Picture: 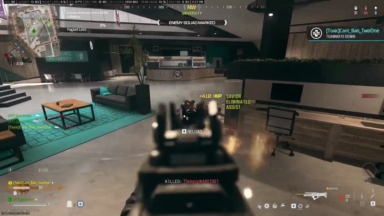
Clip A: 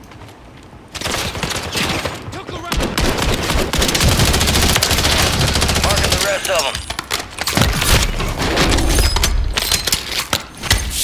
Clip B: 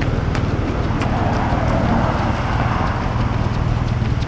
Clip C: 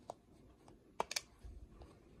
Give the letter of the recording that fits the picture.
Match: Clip A